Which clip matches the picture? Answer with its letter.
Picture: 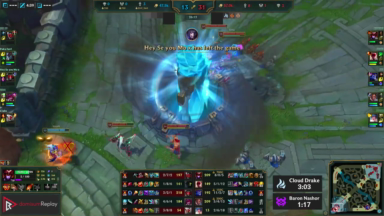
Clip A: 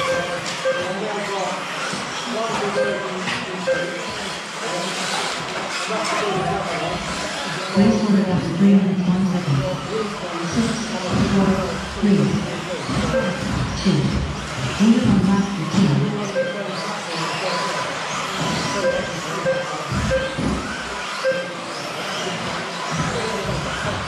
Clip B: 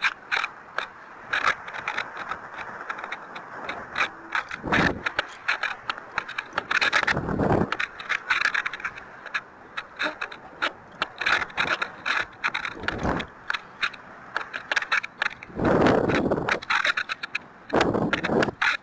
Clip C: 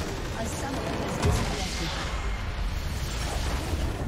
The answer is C